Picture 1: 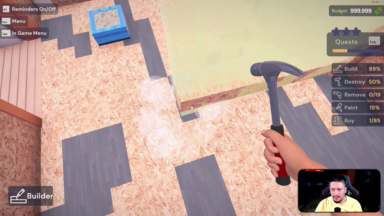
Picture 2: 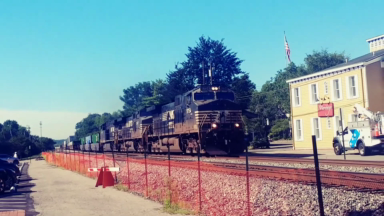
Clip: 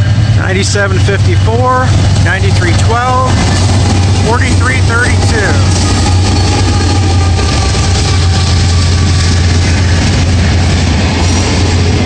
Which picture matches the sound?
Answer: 2